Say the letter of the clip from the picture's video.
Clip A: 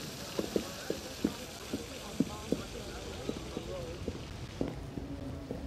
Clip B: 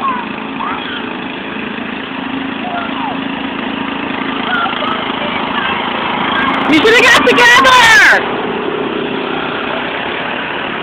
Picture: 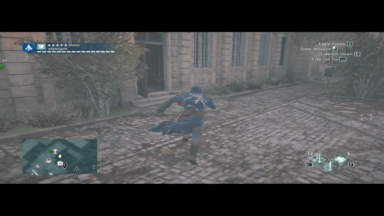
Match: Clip A